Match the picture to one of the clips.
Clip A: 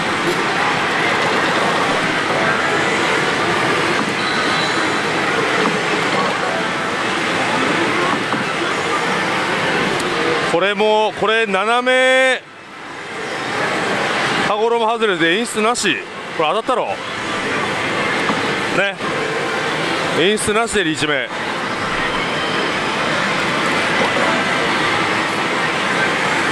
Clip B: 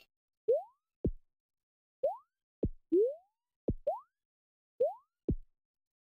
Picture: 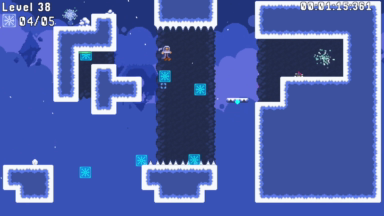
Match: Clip B